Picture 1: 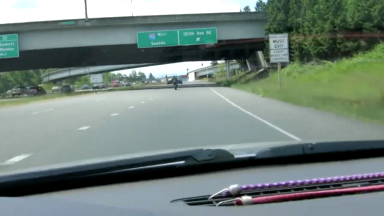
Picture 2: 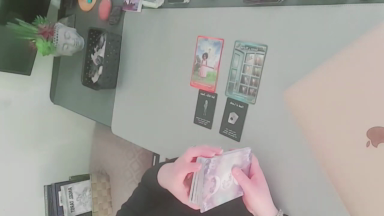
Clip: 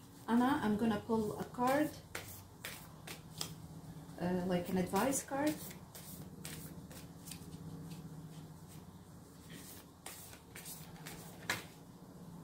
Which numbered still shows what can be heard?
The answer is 2